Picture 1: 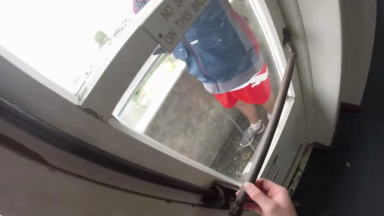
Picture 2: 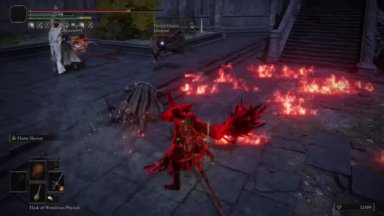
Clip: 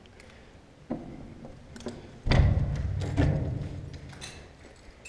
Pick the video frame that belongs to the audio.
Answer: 1